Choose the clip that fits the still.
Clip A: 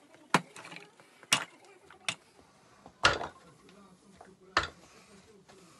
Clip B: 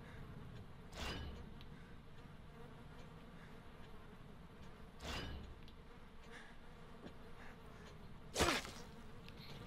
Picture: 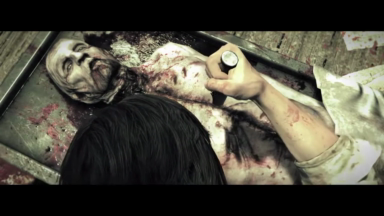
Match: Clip B